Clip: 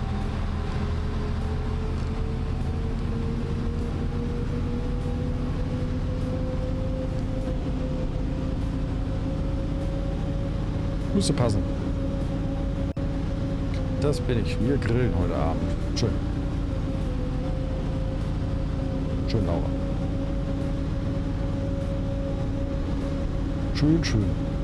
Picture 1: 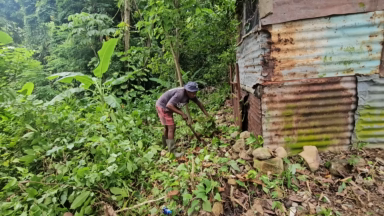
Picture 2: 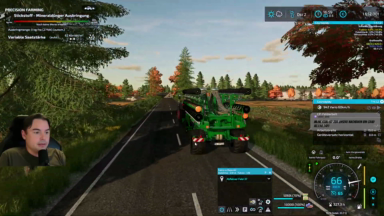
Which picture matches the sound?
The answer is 2